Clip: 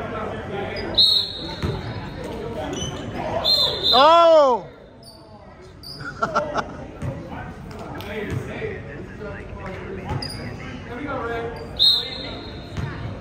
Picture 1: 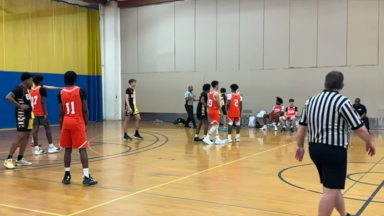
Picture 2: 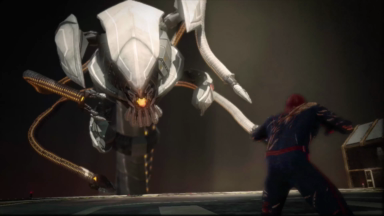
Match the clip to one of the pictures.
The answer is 1